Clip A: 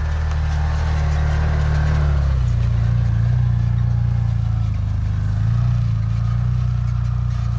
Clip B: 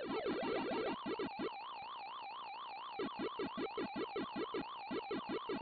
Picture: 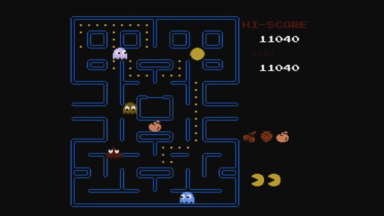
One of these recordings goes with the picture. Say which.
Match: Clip B